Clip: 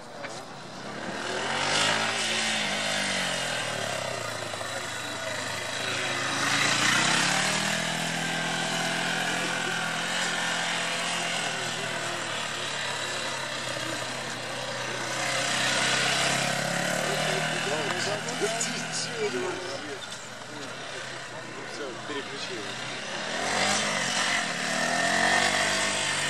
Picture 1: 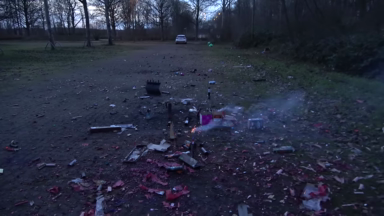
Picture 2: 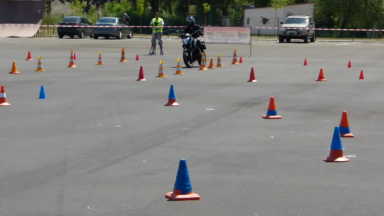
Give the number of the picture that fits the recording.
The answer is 2